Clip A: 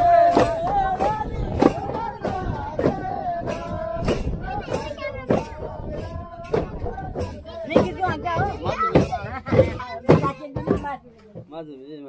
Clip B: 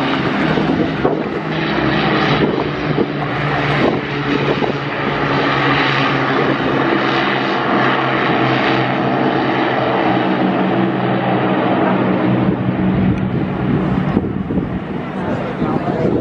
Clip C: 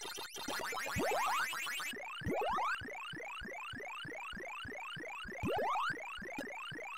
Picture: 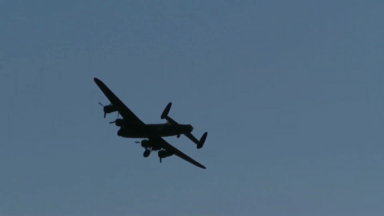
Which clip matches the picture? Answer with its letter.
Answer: B